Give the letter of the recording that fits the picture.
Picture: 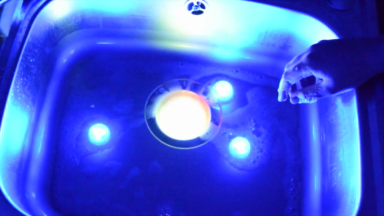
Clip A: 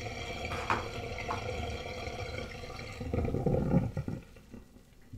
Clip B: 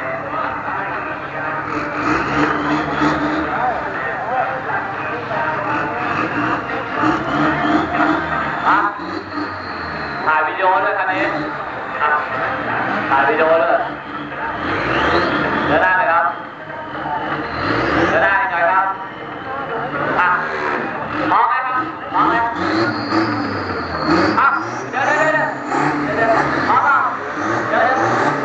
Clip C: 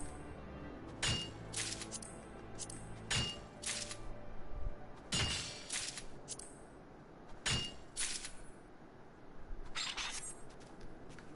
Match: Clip A